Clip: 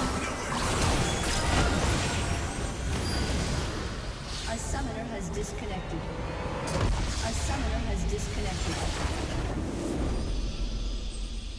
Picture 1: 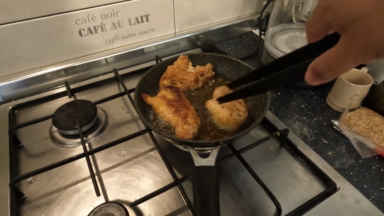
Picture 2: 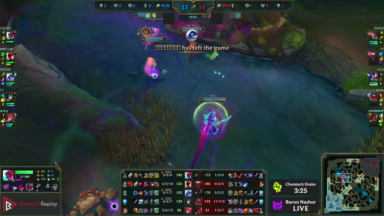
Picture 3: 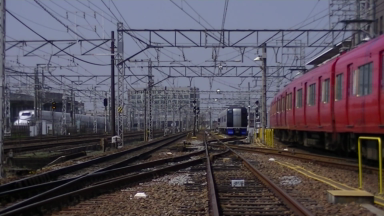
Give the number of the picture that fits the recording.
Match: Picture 2